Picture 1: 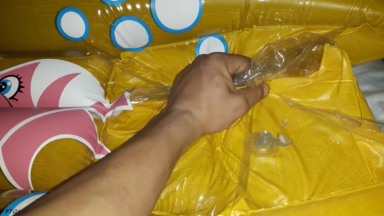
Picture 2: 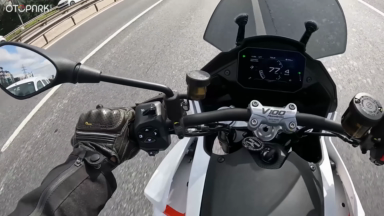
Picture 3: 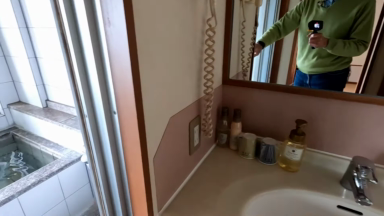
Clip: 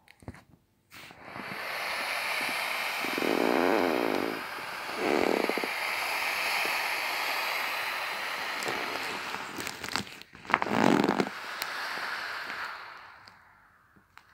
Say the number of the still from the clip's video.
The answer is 1